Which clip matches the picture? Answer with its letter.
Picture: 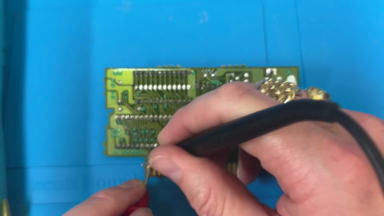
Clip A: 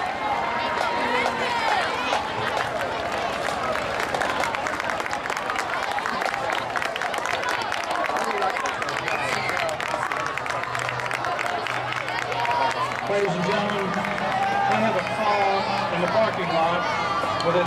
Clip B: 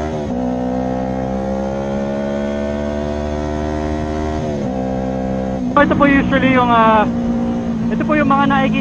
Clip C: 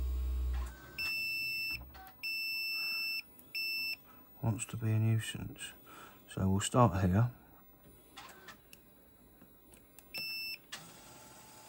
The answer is C